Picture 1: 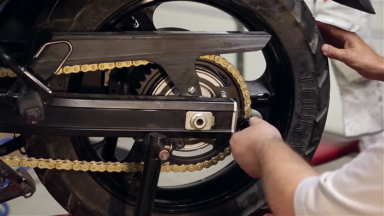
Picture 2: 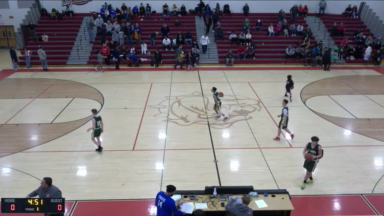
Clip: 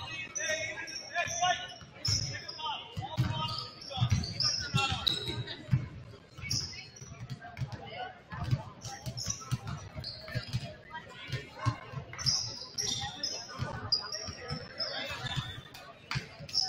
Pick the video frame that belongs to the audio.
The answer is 2